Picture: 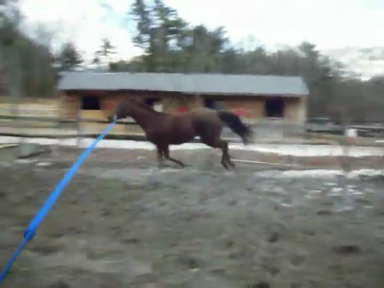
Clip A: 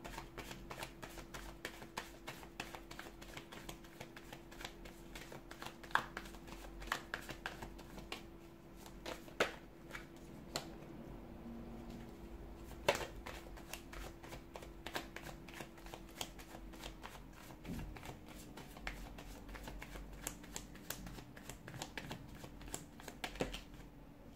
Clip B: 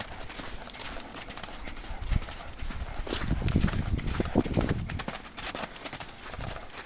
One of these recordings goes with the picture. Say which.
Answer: B